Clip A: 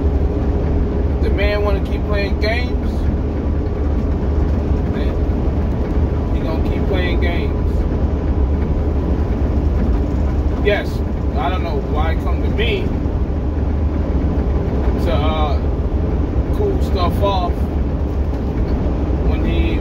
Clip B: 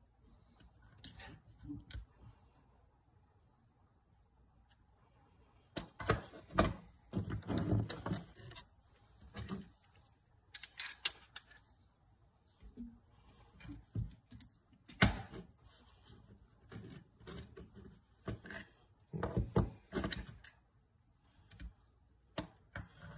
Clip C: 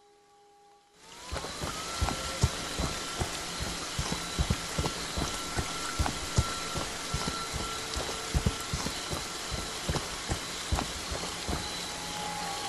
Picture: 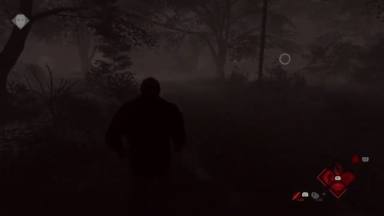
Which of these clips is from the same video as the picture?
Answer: C